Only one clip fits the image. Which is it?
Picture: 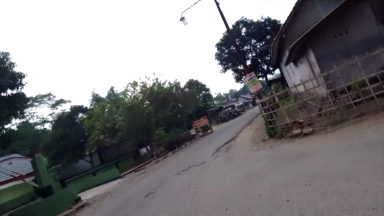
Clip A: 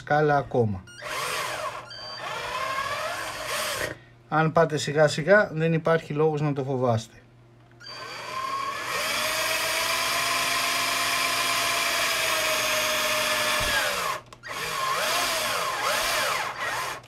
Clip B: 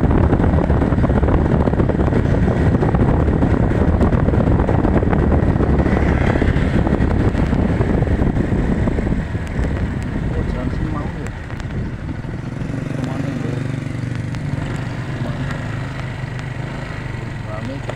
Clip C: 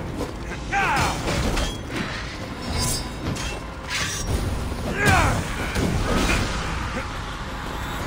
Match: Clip B